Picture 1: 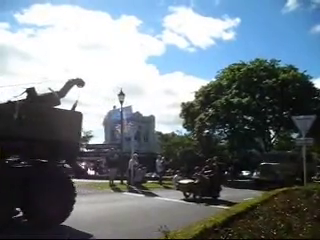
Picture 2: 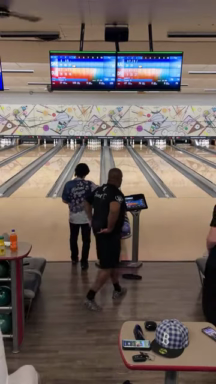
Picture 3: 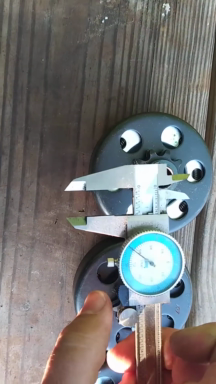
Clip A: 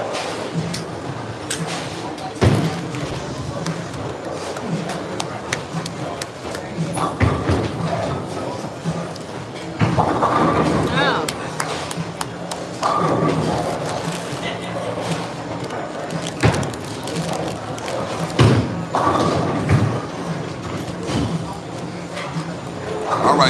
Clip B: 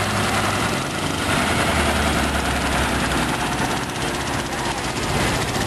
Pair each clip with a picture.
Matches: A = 2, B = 1